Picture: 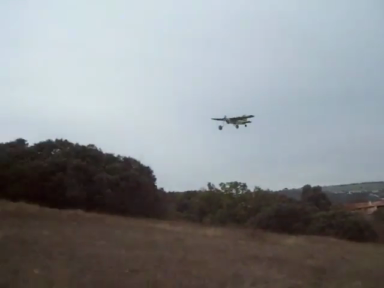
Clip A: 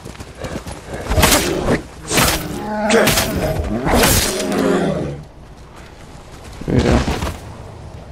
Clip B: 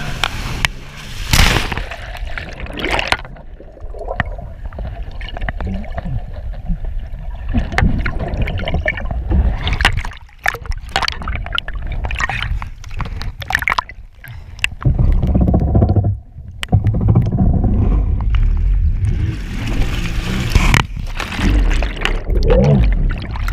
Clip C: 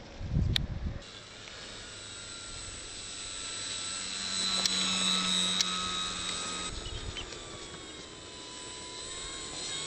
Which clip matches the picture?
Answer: C